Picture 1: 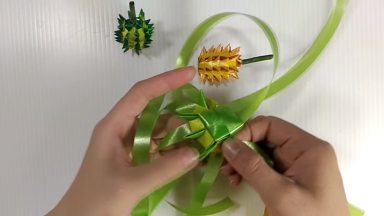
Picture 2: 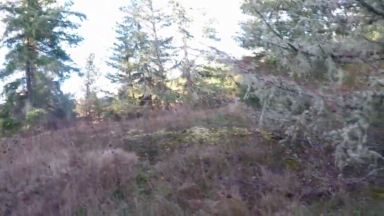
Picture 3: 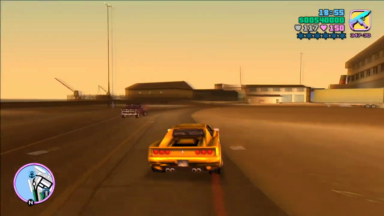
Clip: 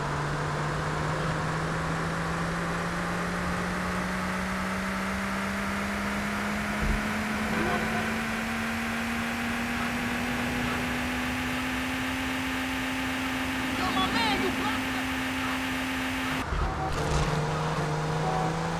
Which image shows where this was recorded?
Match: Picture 3